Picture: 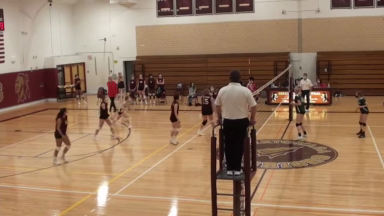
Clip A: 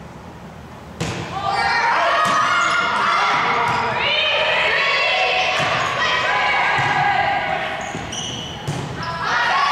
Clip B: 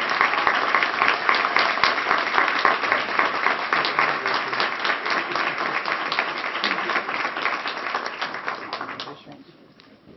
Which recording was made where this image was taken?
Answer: A